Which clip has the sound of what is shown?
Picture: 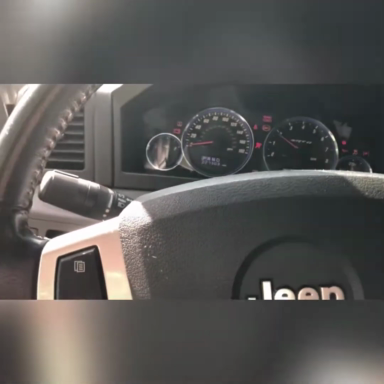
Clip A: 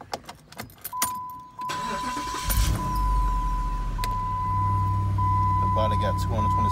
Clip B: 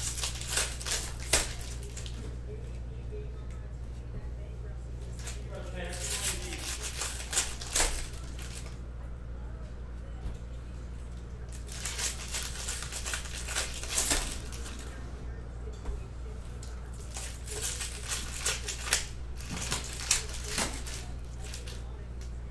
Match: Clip A